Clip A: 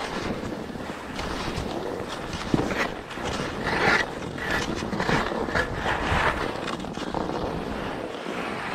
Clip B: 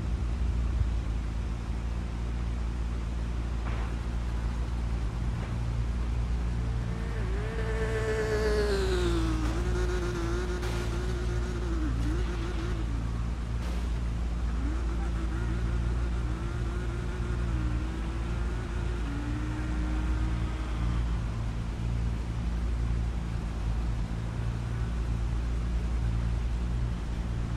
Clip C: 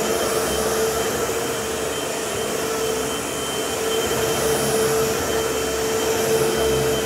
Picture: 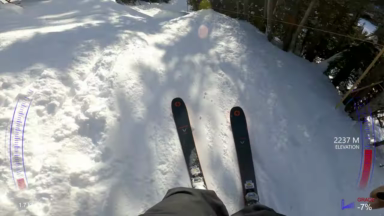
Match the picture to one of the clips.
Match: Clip A